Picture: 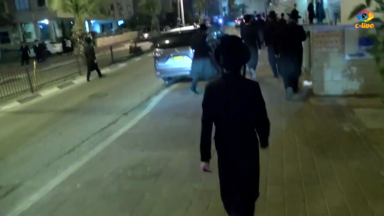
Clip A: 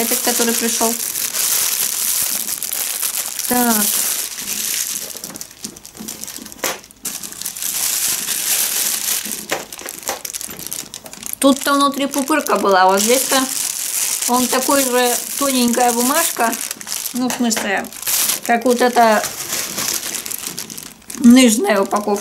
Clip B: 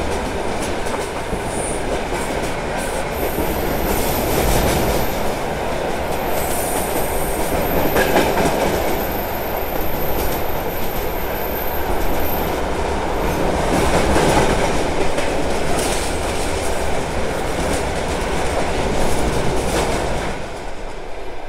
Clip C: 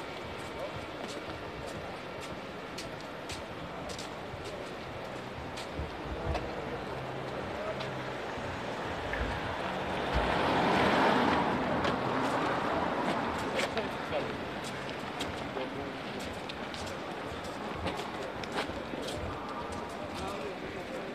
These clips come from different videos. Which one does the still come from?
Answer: C